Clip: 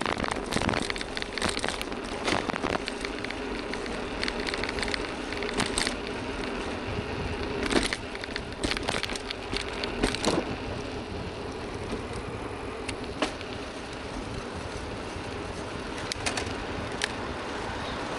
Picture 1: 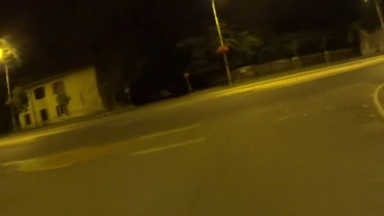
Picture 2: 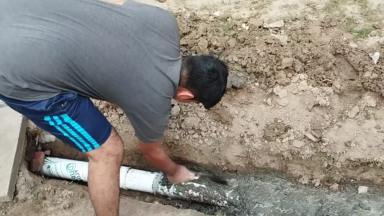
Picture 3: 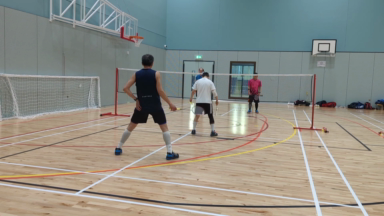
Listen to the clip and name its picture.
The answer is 1